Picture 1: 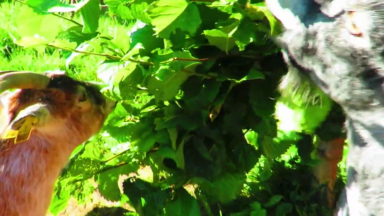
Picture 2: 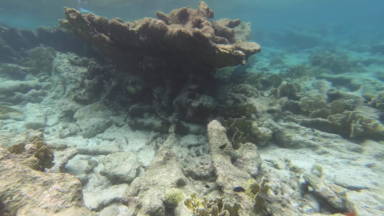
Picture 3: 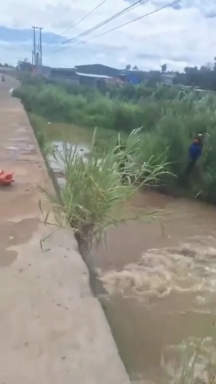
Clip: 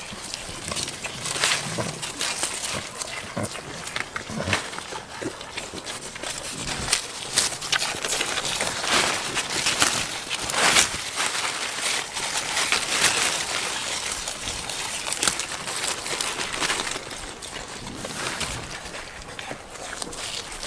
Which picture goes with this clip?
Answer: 1